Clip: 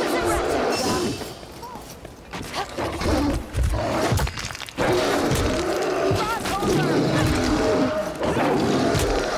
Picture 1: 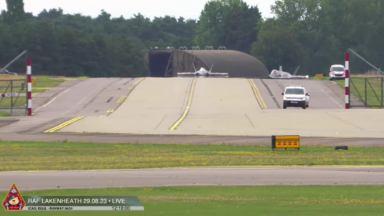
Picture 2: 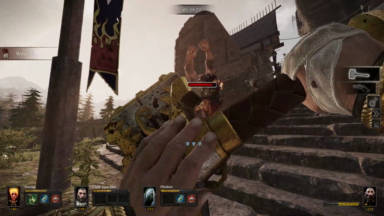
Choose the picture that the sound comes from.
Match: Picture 2